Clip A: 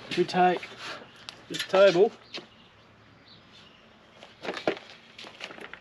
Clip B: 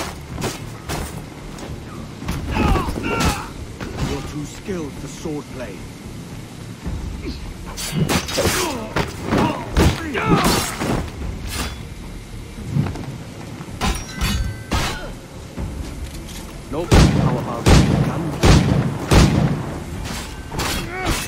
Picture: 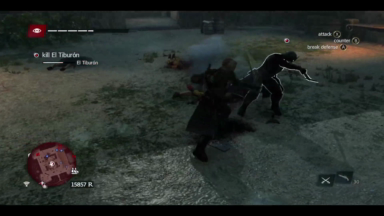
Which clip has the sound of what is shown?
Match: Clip B